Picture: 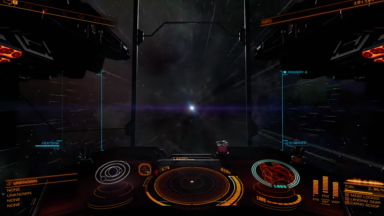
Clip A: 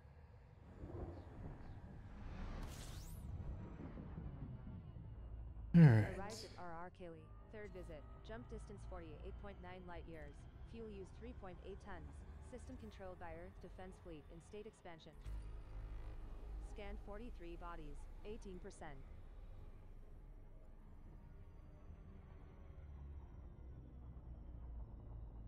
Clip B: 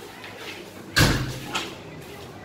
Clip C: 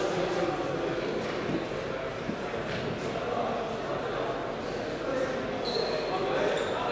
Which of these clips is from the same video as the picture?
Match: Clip A